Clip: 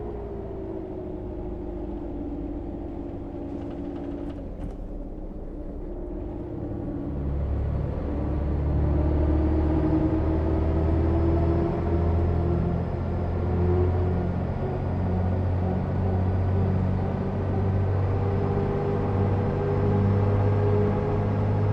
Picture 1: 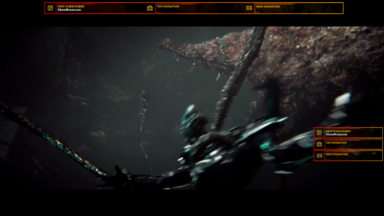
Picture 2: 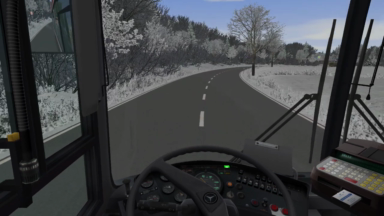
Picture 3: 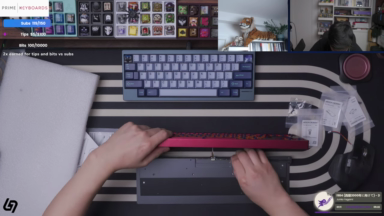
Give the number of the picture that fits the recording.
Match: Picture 2